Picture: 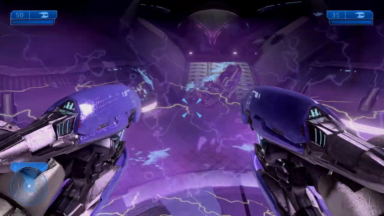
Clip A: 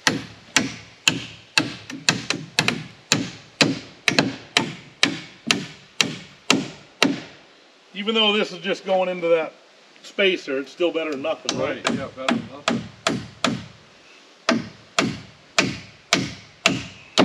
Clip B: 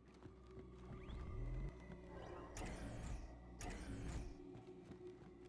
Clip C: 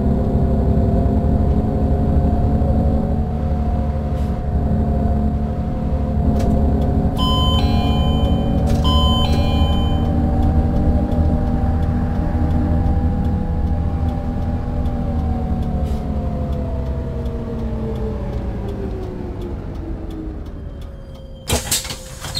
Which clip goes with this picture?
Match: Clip B